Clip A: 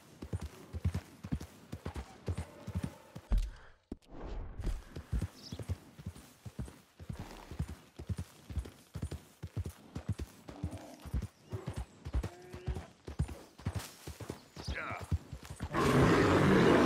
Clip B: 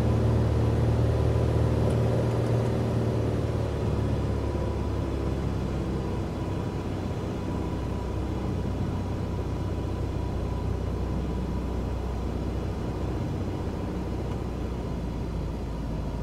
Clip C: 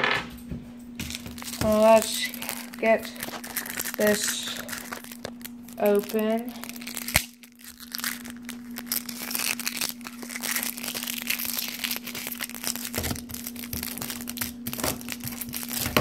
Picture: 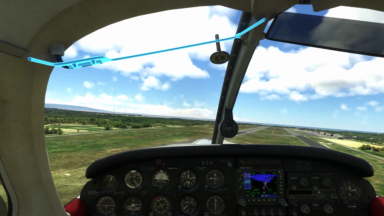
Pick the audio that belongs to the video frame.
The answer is B